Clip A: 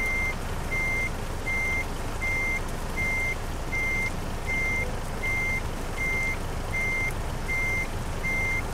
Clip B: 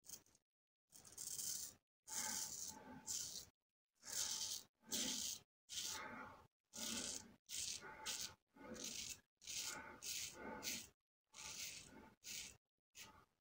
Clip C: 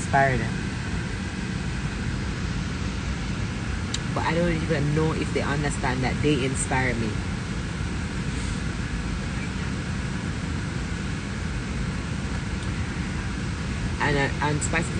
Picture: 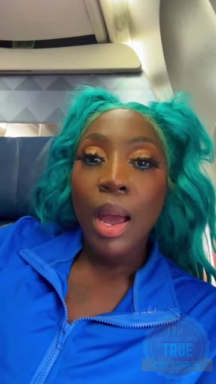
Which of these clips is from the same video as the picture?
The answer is C